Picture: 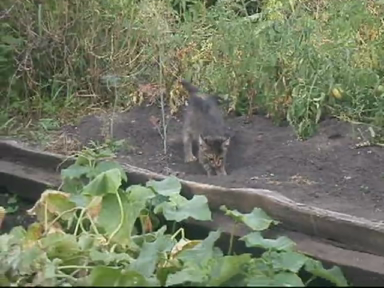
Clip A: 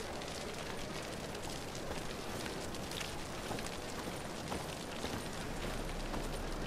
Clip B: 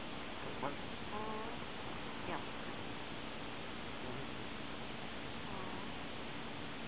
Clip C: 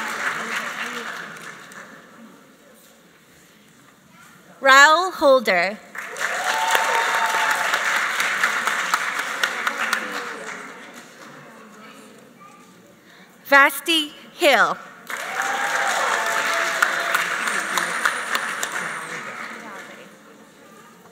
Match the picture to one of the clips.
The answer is B